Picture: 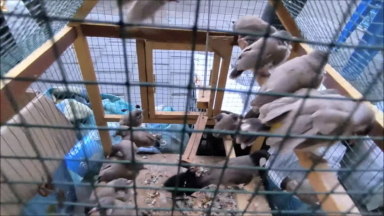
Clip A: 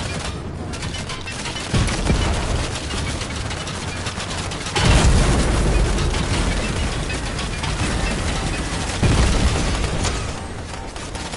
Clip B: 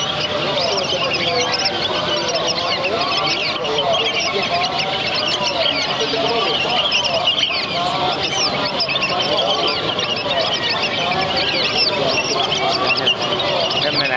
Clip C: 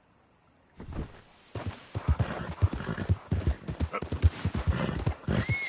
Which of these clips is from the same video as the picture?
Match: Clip B